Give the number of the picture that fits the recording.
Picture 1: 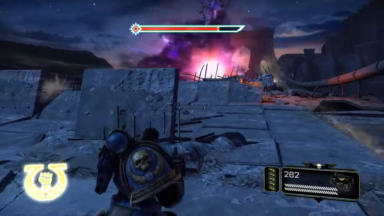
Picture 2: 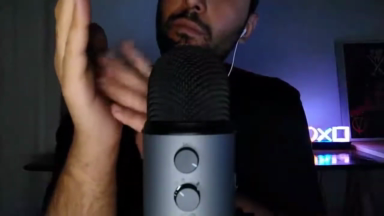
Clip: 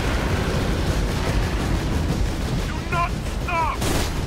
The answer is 1